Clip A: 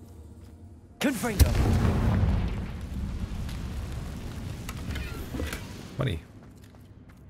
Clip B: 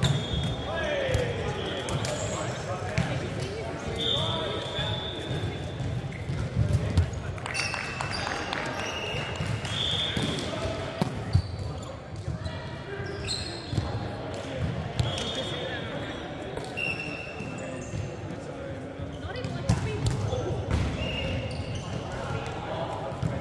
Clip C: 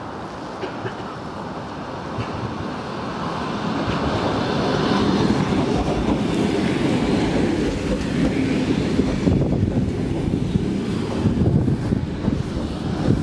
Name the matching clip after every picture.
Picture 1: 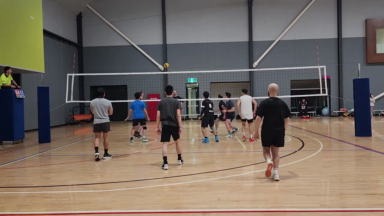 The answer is B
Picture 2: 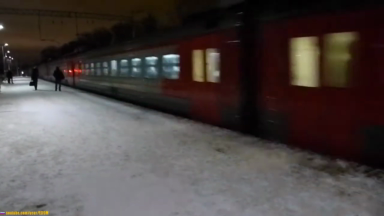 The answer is C